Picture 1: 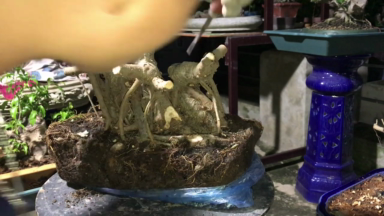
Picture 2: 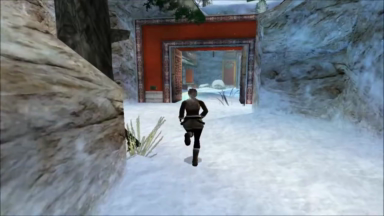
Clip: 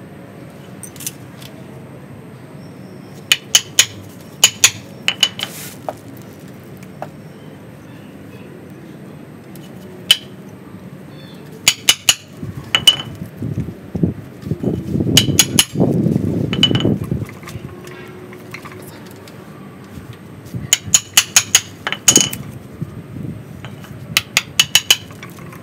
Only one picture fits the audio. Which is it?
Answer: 1